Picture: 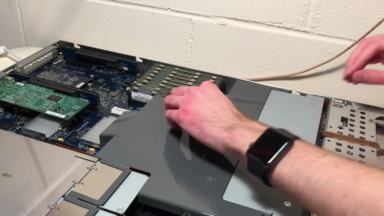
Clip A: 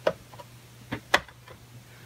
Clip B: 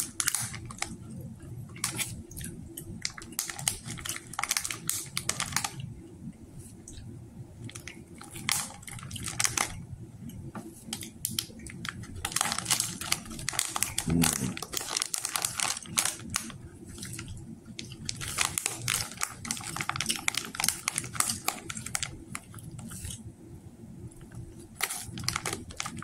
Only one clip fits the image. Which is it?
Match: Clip A